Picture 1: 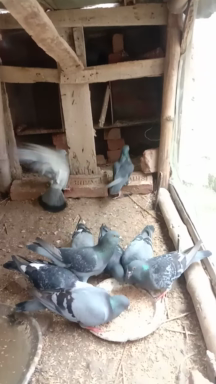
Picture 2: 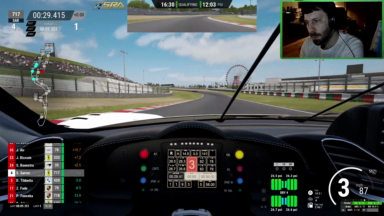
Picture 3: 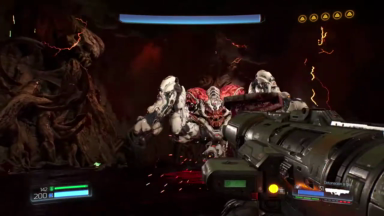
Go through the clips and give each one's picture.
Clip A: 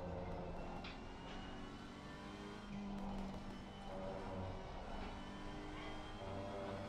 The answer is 2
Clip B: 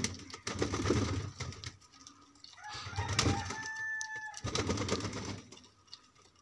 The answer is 1